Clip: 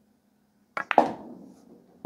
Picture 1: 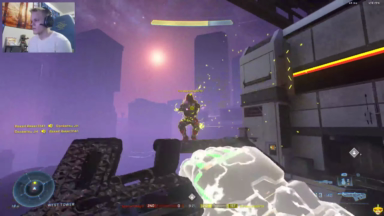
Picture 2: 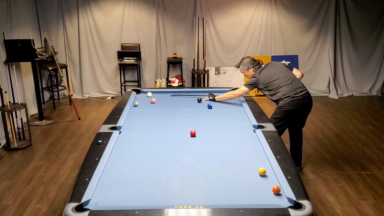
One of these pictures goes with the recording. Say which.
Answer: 2